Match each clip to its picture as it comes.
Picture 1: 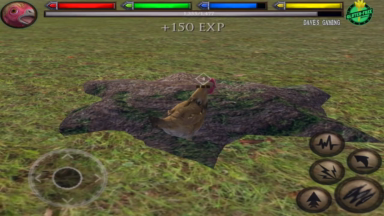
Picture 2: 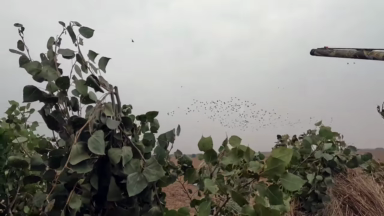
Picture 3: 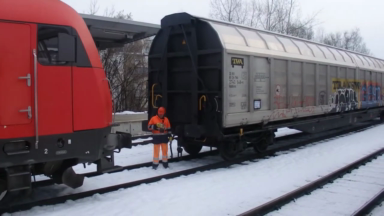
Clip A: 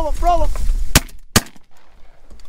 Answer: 2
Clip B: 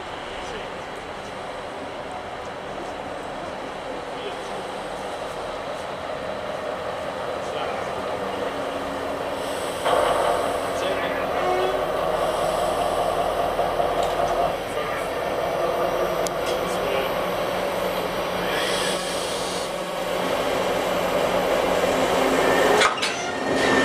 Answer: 3